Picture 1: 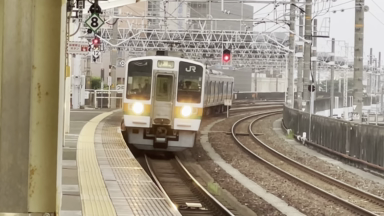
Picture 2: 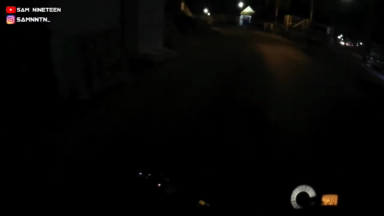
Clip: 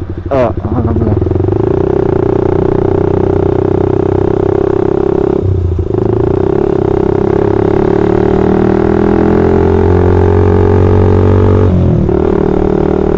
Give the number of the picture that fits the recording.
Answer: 2